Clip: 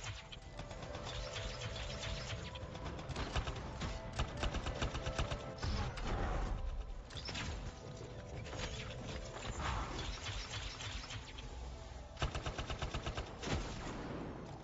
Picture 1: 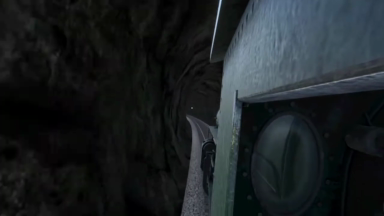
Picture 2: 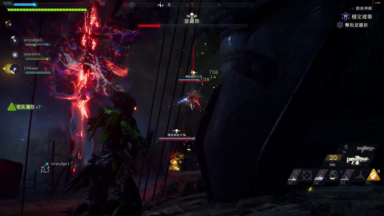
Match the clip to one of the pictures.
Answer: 2